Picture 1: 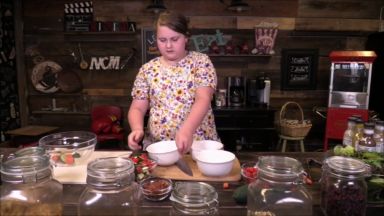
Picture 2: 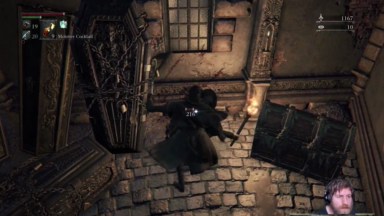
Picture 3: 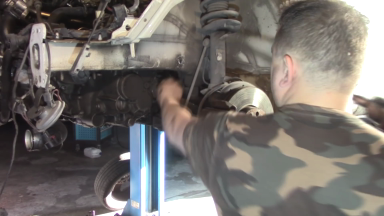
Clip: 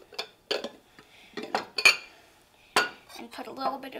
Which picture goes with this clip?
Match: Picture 1